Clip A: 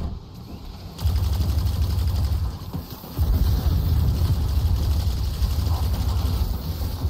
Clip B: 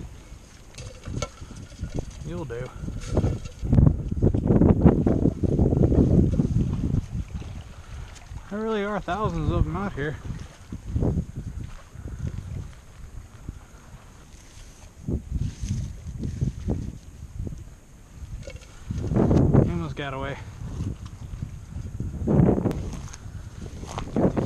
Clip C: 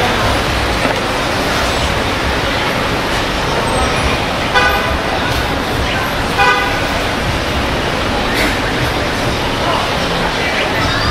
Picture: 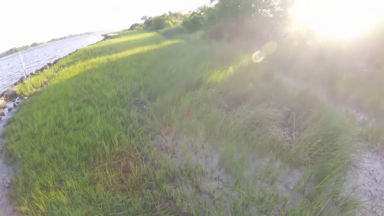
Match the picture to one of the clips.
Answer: B